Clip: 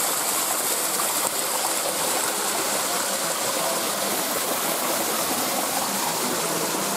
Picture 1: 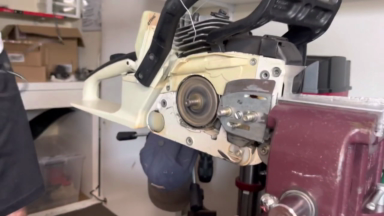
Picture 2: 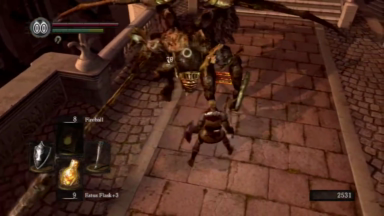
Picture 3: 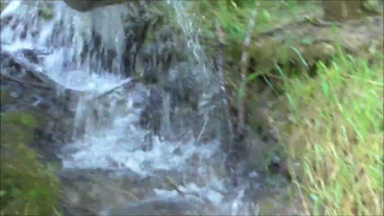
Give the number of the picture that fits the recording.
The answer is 3